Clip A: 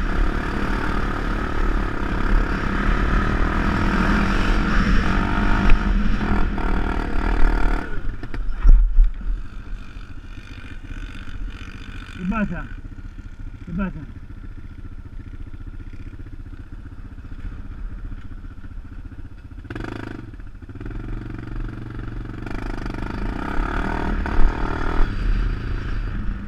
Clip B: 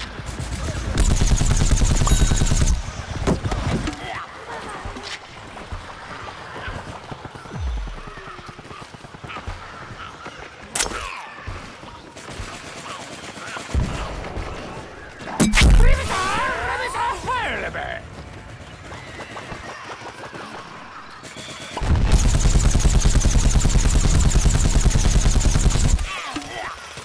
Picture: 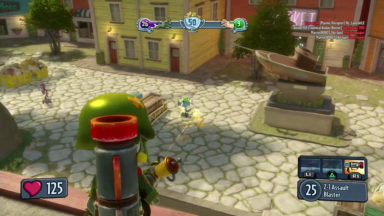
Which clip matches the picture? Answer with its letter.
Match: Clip B